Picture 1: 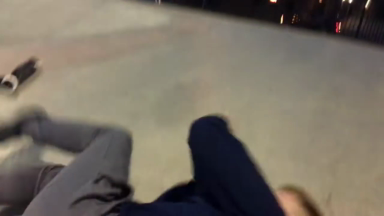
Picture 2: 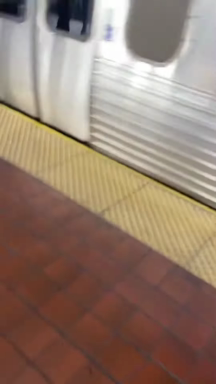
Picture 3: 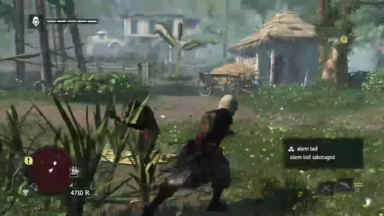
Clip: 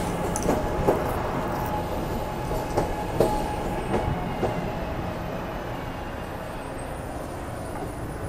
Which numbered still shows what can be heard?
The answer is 2